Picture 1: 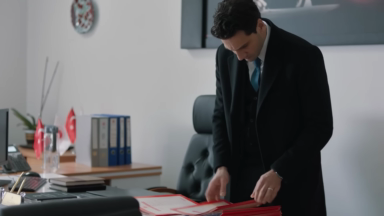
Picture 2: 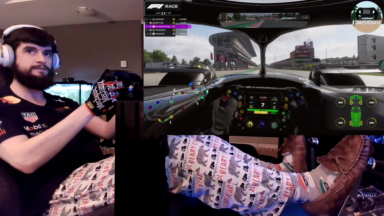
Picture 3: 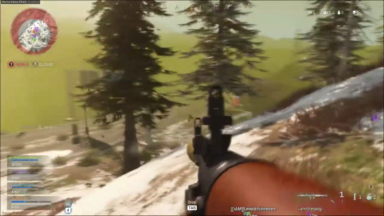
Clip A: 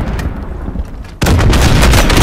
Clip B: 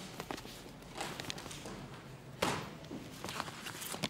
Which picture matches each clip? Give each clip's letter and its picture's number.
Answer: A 3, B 1